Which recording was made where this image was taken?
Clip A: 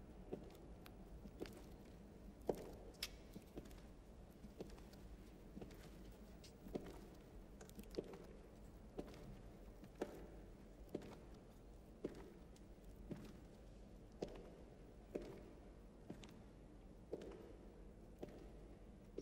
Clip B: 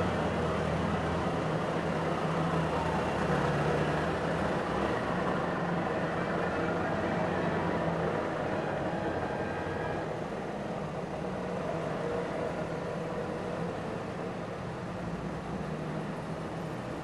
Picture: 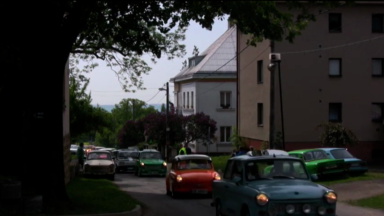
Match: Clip B